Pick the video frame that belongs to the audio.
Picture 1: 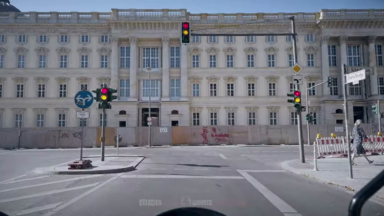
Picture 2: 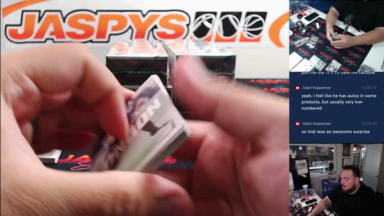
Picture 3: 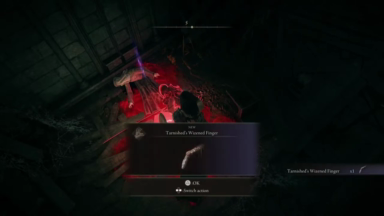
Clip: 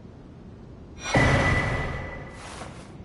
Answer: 3